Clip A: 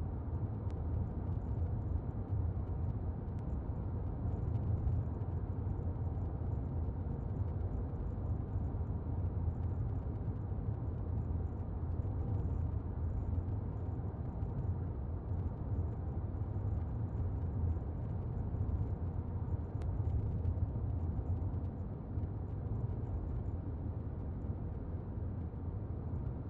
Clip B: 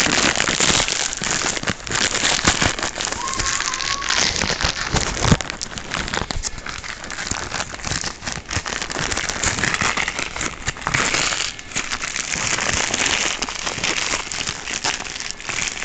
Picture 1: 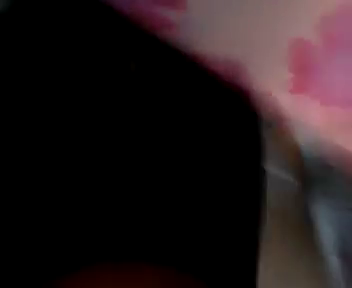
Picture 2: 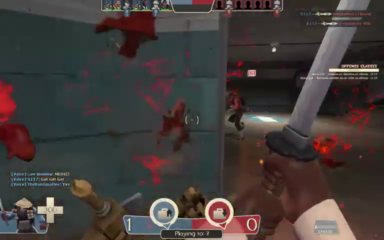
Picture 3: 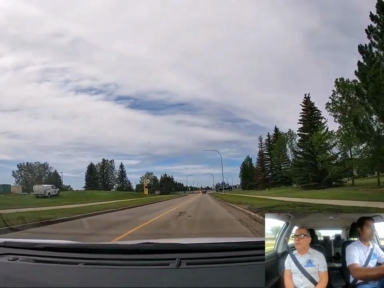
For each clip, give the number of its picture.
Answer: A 3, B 1